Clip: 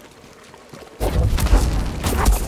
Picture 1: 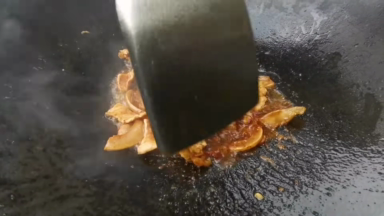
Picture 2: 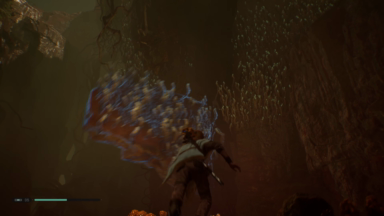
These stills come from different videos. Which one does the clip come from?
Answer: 2